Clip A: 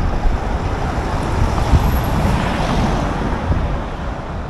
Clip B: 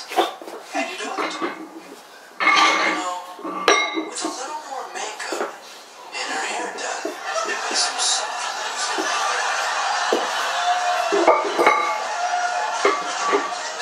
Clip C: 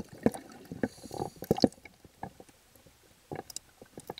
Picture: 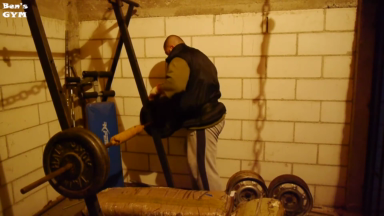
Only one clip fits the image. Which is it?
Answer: B